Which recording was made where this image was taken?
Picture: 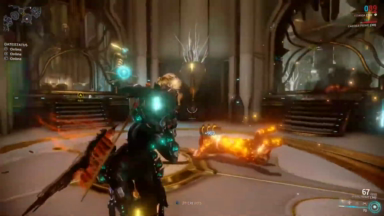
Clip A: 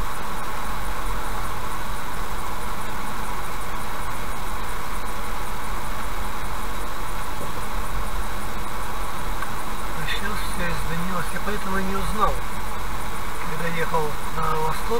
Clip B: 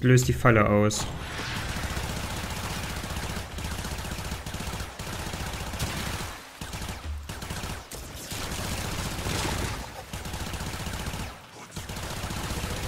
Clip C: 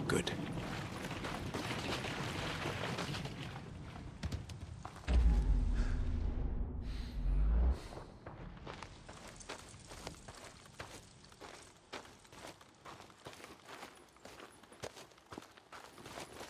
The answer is B